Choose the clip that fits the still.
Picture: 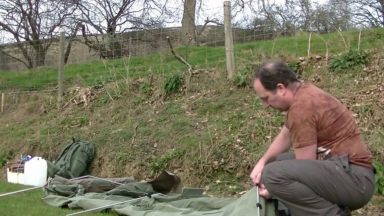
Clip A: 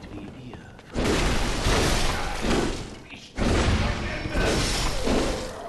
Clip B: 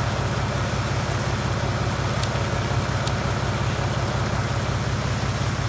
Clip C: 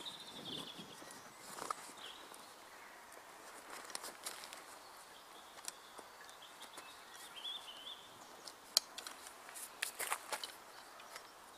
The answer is C